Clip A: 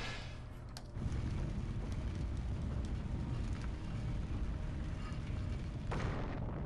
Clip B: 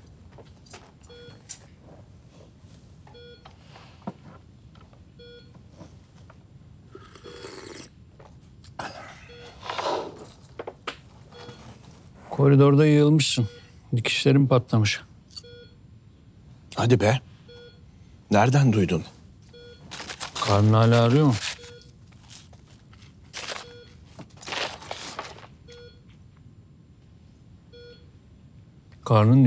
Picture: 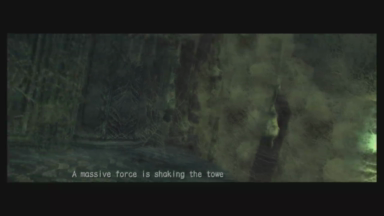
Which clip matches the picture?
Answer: A